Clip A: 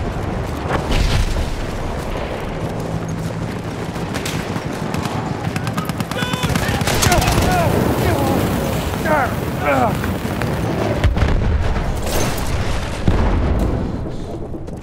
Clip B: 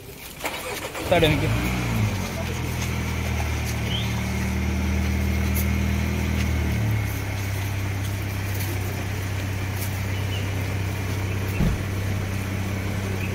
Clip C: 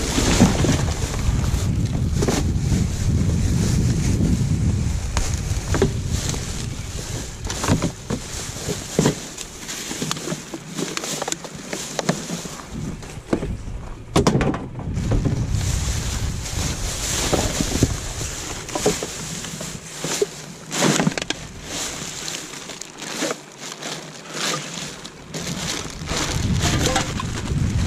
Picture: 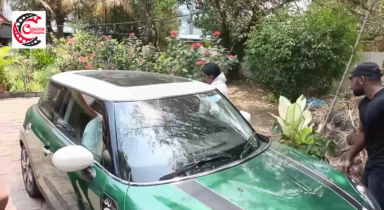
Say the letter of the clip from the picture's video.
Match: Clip B